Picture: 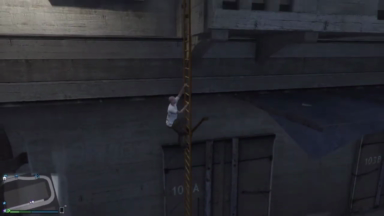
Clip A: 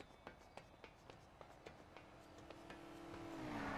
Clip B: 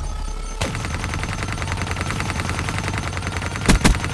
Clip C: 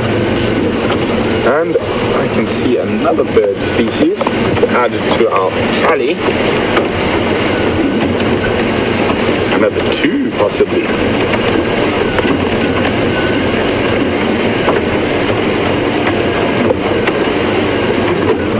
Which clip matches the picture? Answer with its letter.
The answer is A